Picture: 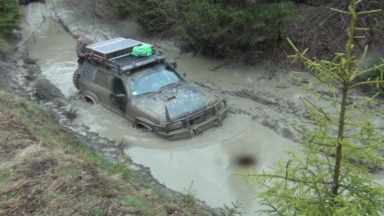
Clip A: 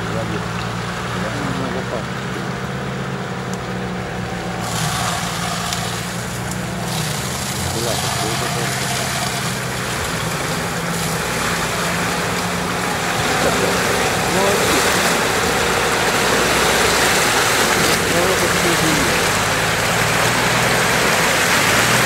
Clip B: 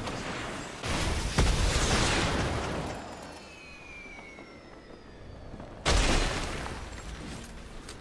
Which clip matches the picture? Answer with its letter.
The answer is A